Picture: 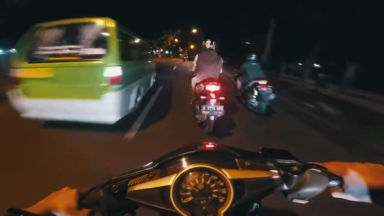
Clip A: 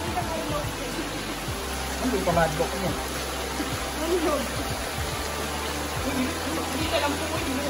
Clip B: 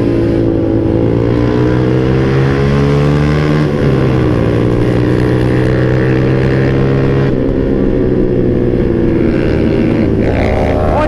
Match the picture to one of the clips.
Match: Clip B